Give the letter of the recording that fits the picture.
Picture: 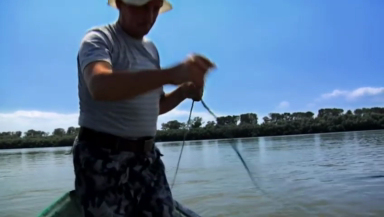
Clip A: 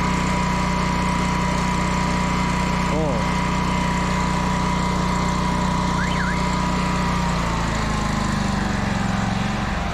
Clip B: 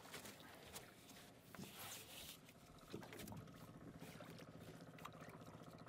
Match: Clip B